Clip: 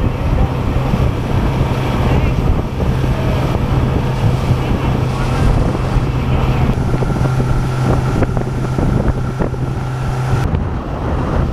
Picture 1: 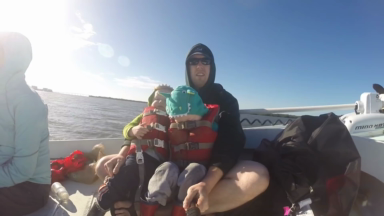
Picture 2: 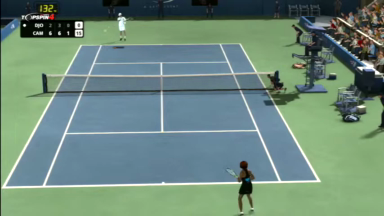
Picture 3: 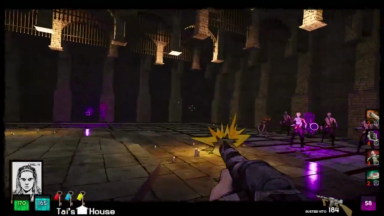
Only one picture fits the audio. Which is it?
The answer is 1